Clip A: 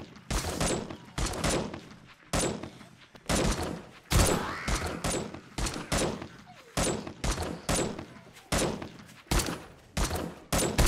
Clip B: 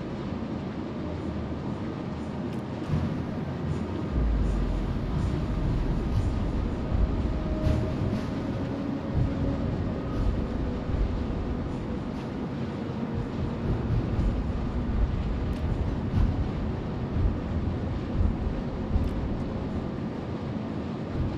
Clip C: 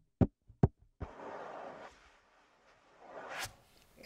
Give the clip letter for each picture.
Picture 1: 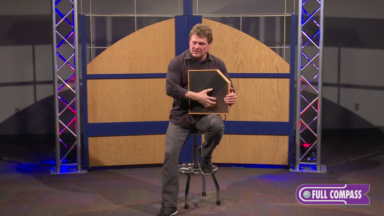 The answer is C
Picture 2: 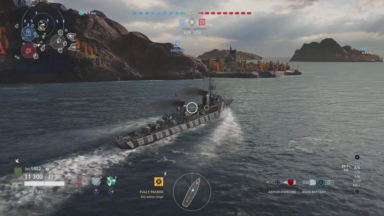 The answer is B